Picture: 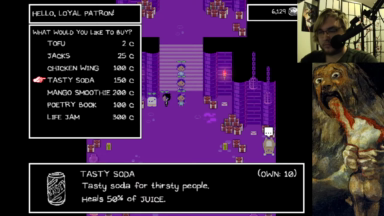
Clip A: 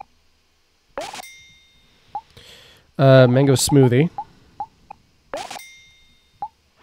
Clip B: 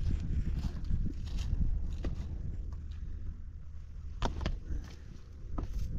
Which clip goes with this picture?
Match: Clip A